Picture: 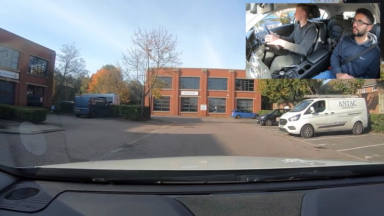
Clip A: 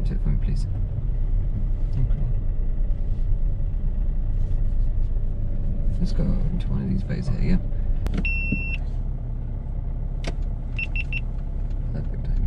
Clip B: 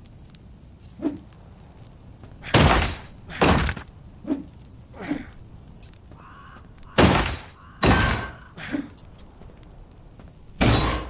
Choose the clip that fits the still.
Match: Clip A